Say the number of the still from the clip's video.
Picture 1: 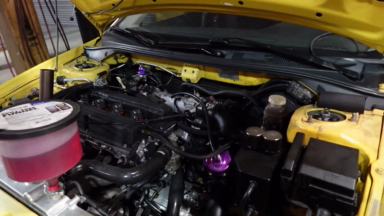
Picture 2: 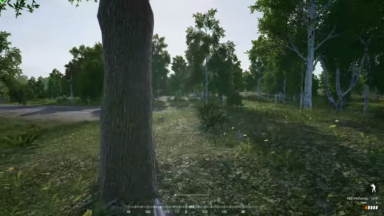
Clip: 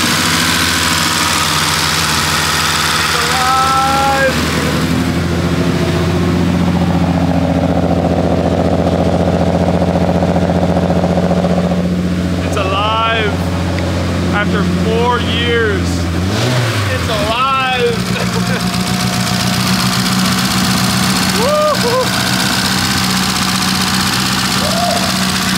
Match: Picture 1